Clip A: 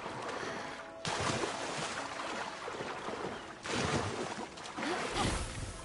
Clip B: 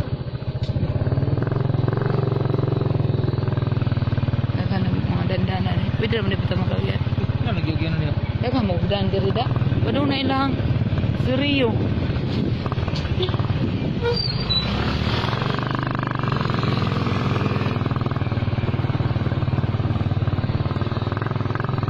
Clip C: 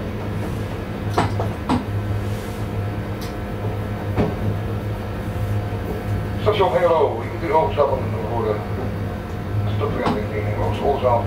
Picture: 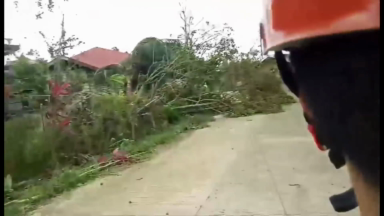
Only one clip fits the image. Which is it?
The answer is B